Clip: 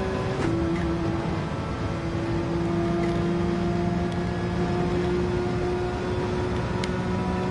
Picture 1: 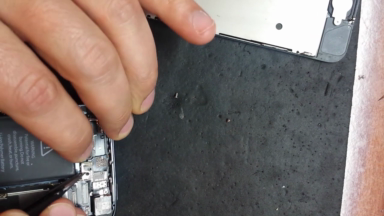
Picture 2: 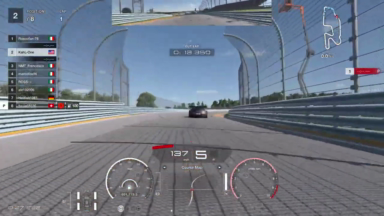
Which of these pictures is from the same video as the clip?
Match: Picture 2